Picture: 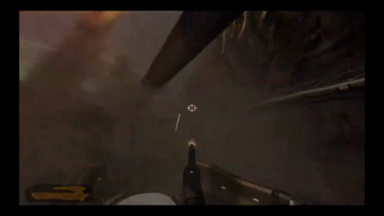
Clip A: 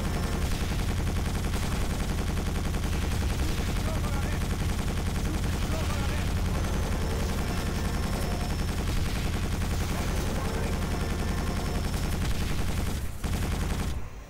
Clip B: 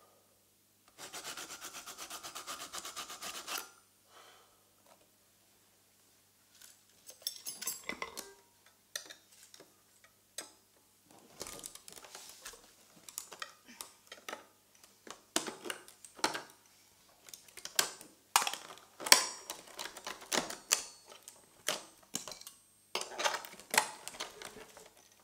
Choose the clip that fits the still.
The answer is A